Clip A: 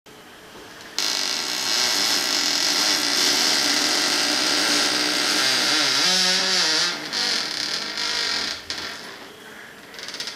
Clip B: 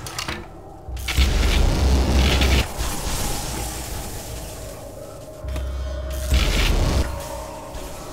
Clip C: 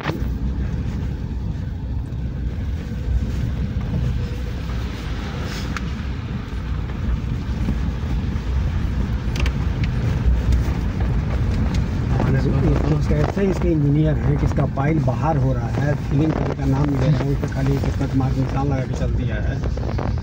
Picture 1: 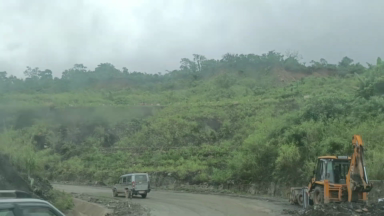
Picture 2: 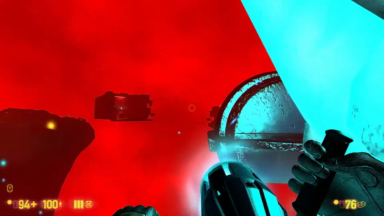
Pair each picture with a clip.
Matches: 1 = C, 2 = B